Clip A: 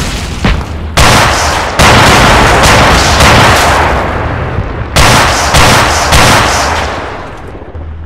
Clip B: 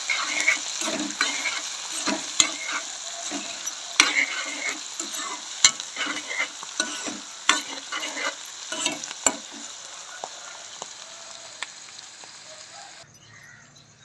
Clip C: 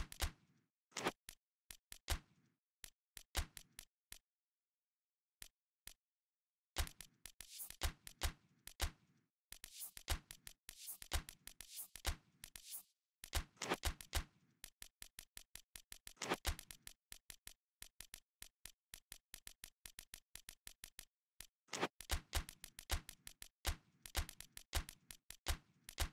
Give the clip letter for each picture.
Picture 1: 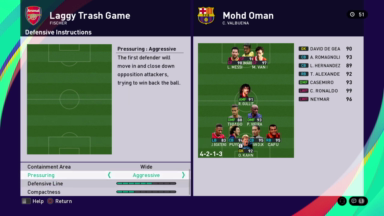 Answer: C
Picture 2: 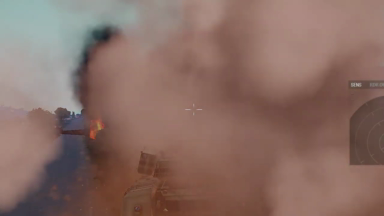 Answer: A